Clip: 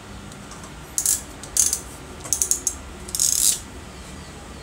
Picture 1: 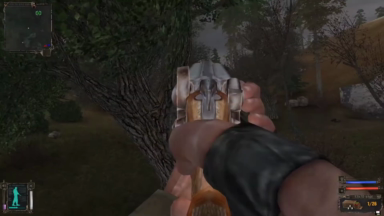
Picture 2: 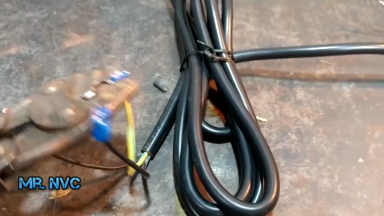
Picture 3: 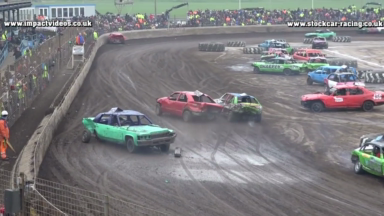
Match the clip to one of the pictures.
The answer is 2